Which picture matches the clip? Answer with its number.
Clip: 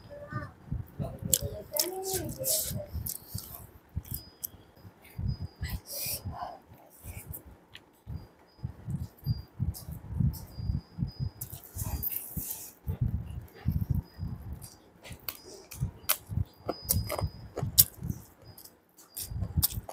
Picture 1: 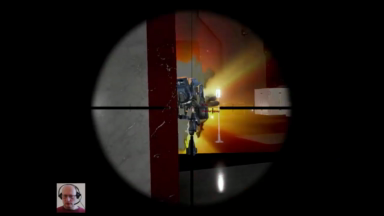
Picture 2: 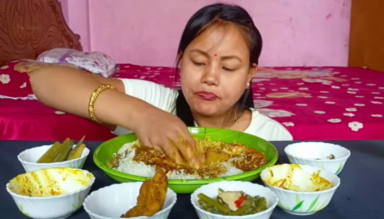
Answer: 2